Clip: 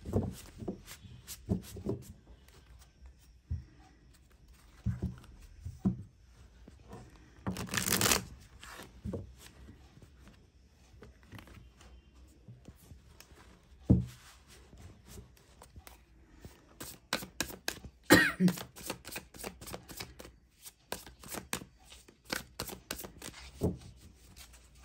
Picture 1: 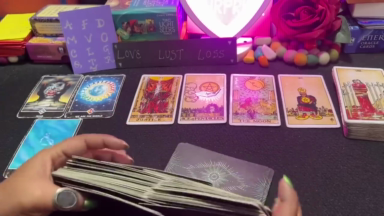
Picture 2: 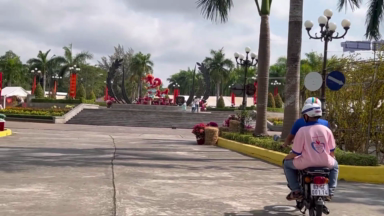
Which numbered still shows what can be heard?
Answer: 1